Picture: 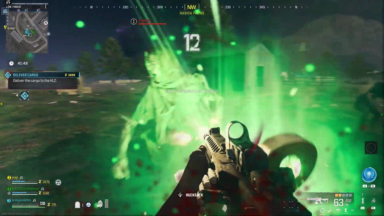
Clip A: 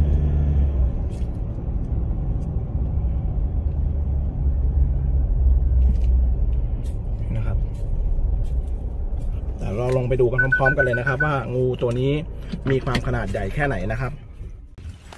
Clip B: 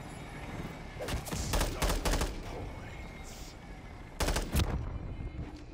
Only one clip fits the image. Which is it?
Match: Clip B